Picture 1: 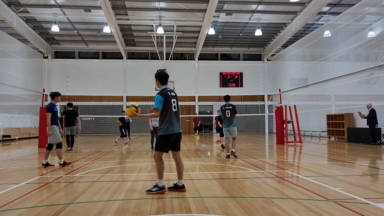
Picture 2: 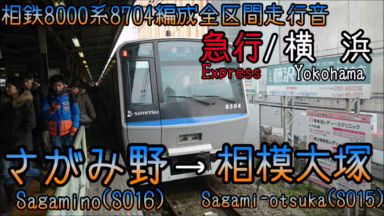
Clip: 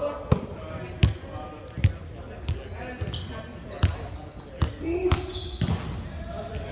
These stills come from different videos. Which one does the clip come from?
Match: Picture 1